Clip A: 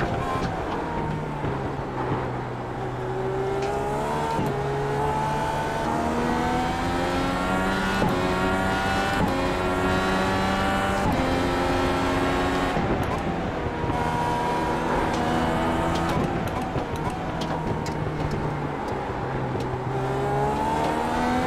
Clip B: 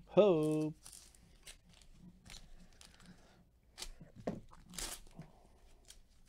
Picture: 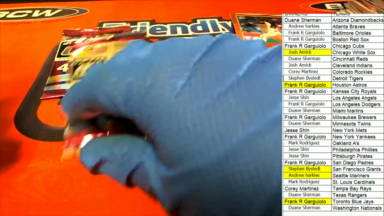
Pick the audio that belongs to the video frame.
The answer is B